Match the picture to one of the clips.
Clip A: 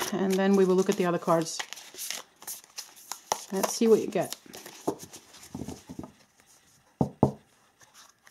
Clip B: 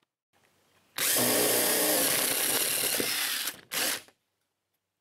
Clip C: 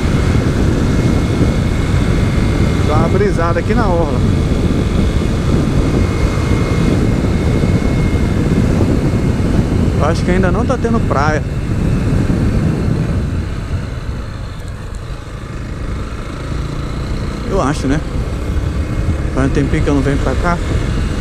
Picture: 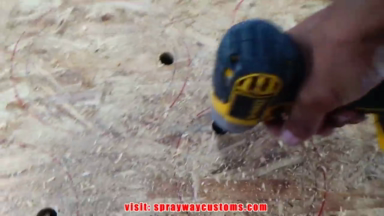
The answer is B